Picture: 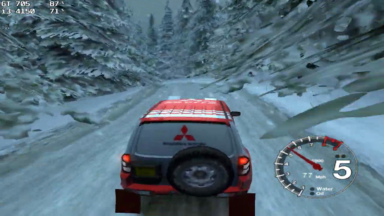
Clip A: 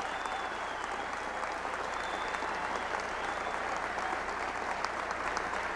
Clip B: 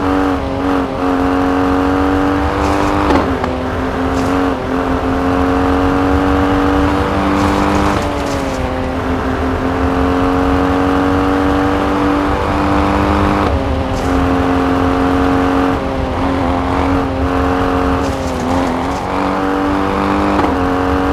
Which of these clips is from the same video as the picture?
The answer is B